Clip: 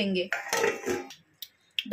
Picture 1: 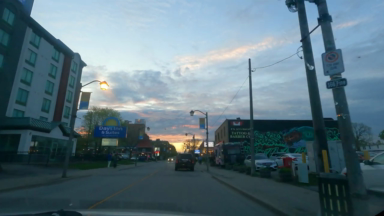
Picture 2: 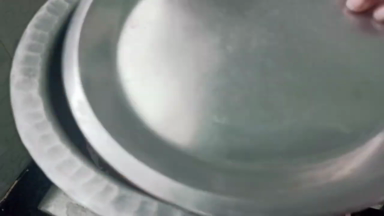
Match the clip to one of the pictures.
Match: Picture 2